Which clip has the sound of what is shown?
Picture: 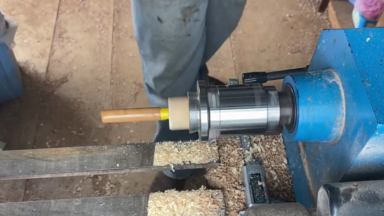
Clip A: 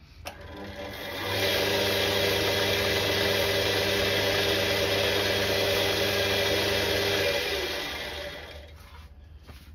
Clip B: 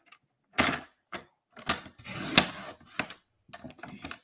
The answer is A